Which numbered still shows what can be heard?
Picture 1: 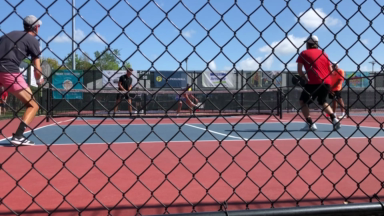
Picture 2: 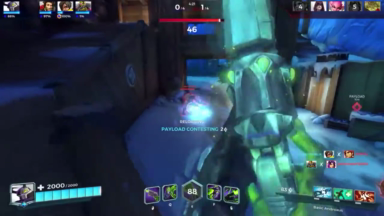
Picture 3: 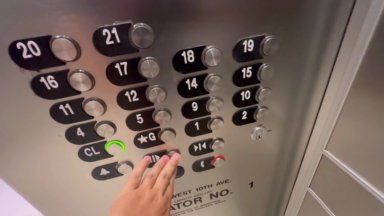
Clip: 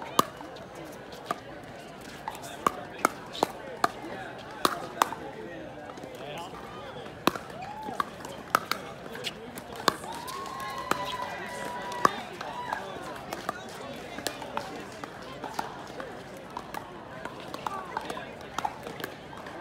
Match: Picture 1